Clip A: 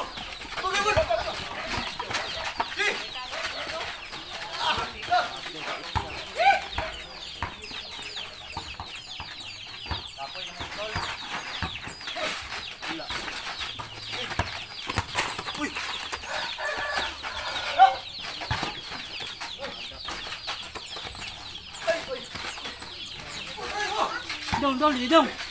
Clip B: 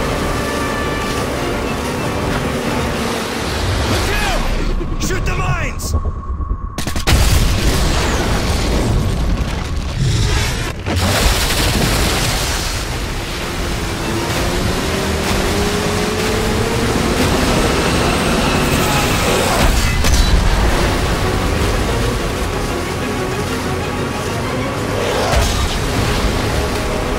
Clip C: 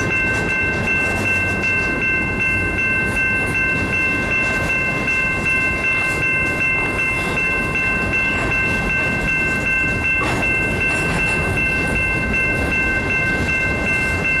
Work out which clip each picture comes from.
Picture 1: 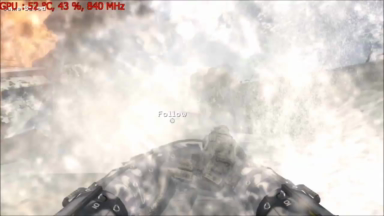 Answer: B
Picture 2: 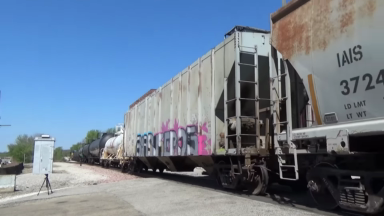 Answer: C